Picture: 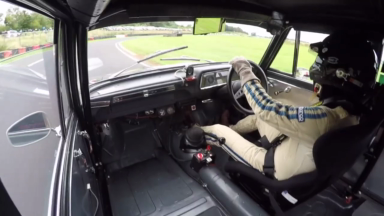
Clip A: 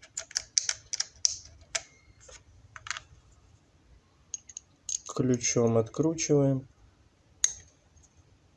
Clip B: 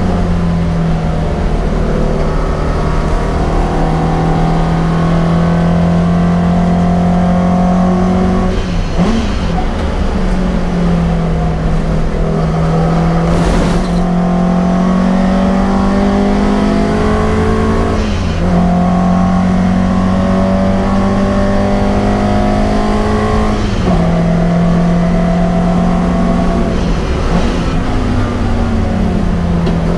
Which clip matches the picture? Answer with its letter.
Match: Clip B